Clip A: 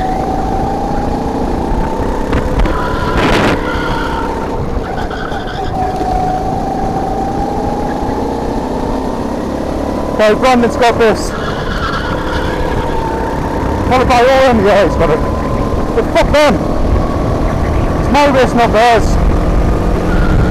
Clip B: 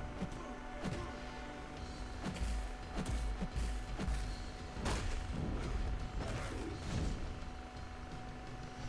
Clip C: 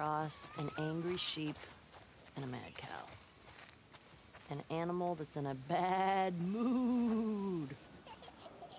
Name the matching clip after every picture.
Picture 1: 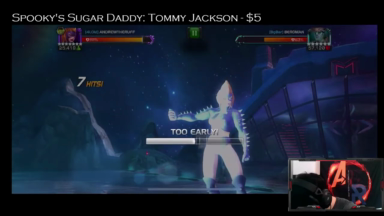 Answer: B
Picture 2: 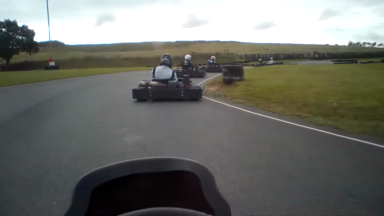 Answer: A